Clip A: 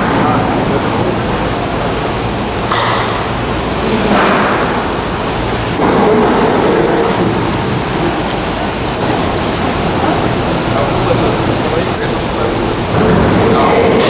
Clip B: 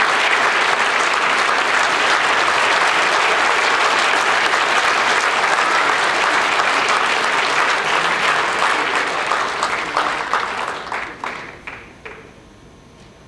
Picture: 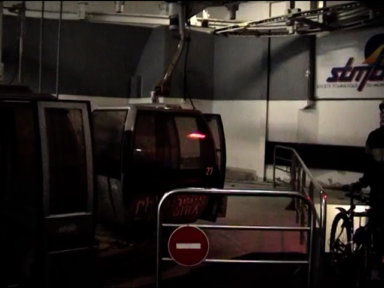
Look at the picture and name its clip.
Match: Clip A